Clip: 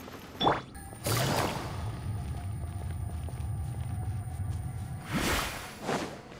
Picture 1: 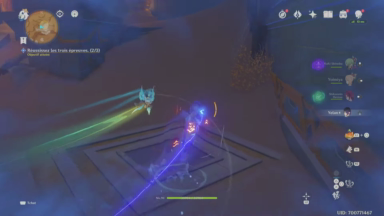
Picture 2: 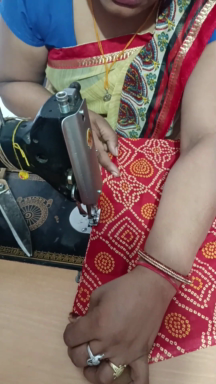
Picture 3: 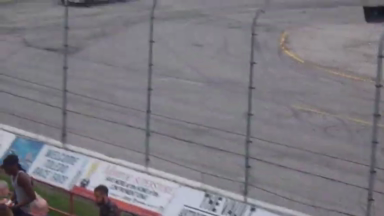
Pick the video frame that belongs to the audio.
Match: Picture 1